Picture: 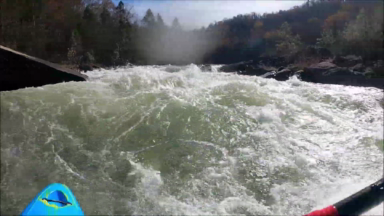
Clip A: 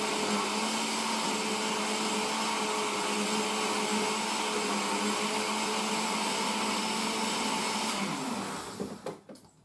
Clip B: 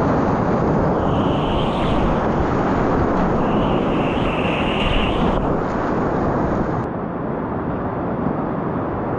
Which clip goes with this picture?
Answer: B